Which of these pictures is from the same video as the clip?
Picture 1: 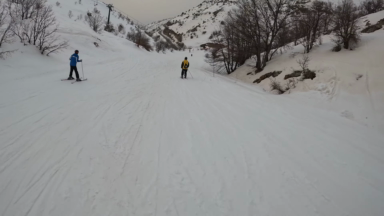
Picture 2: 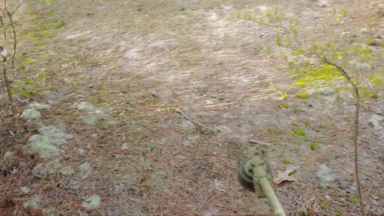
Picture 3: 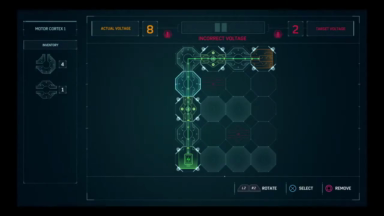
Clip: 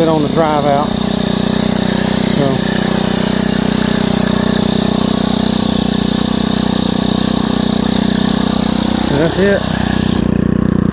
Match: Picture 2